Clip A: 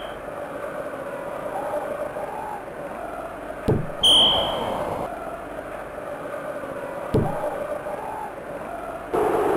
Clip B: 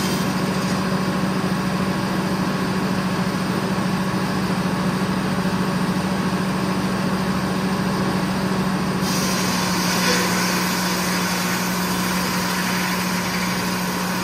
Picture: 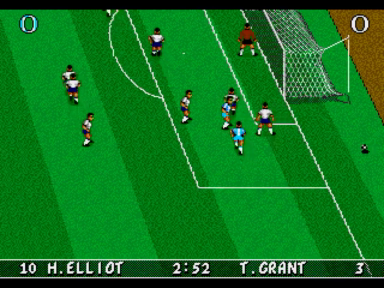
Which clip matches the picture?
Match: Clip A